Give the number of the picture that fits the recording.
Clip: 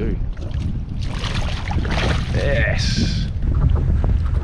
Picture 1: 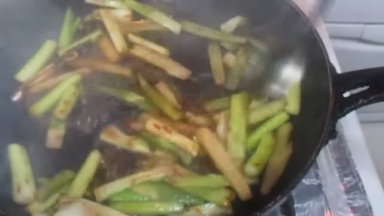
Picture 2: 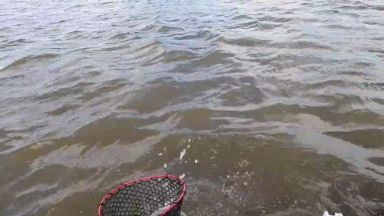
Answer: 2